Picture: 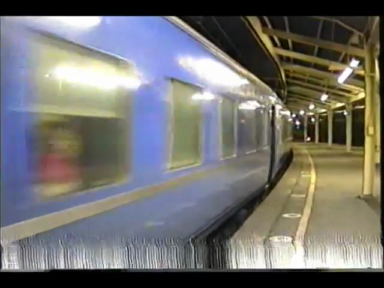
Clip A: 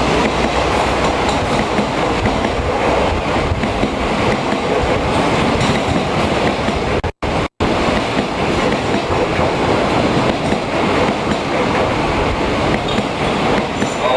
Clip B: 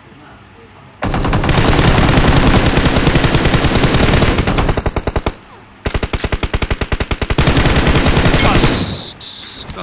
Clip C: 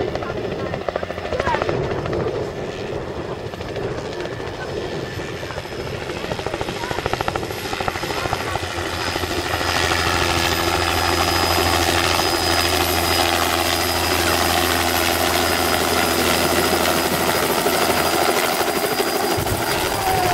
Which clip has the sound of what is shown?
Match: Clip A